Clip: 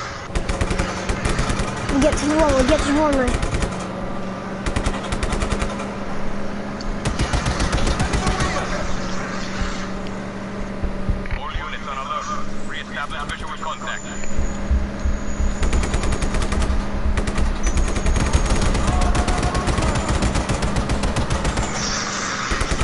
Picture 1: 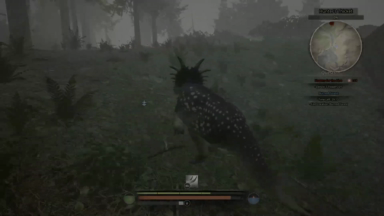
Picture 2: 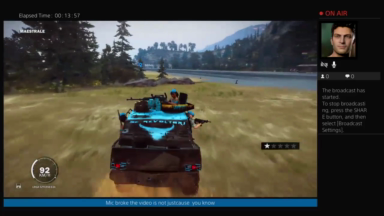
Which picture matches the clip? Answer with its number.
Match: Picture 2